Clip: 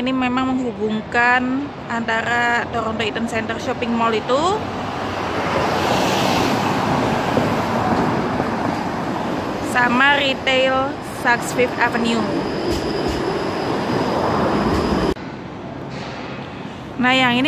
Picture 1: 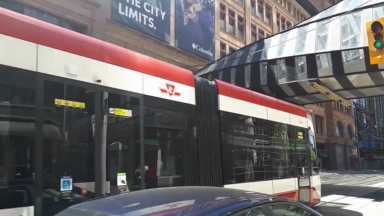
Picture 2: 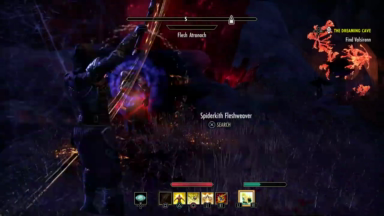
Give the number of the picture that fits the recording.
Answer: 1